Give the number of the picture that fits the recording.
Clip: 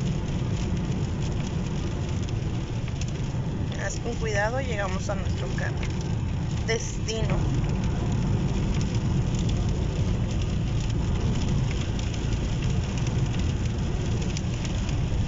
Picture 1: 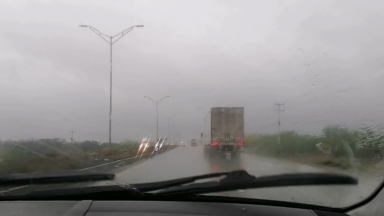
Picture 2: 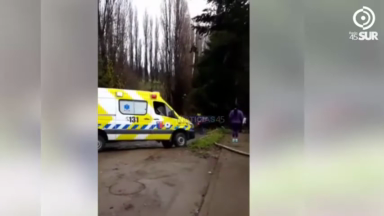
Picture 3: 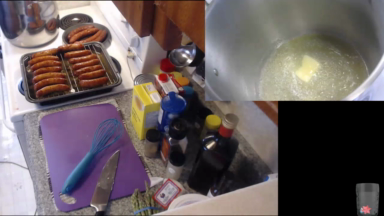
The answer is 1